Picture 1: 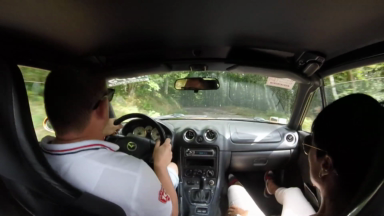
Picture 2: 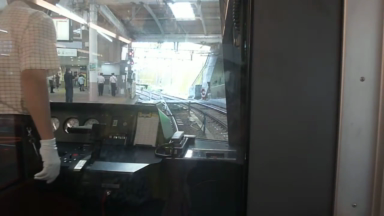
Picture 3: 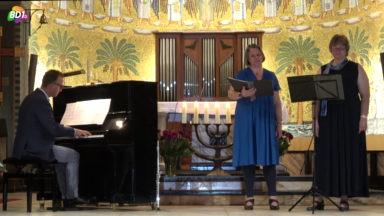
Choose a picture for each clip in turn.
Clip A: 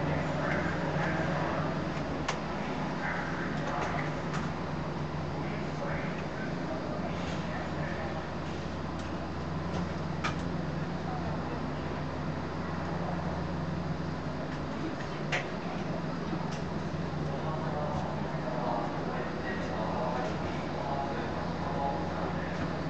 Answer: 2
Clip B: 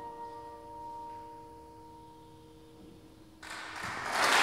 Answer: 3